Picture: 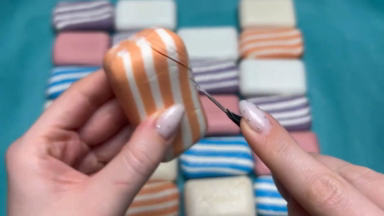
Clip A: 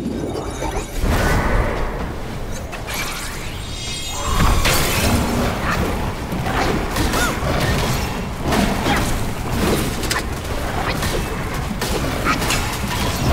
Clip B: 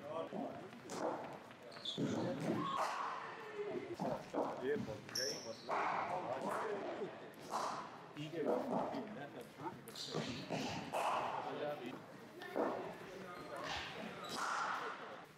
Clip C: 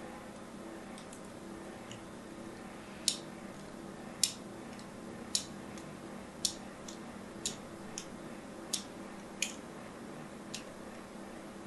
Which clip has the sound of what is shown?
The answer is C